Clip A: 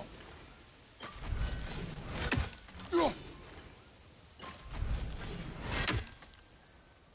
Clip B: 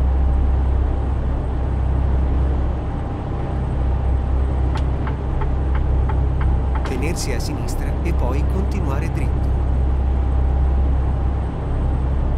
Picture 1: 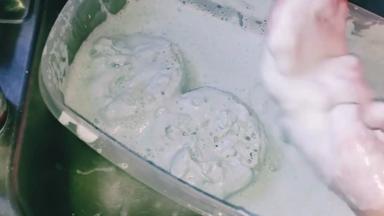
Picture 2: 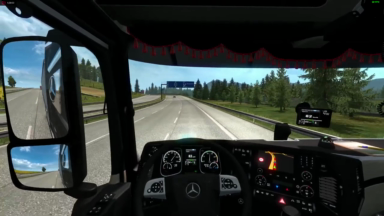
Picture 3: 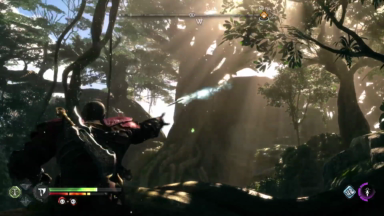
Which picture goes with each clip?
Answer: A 3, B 2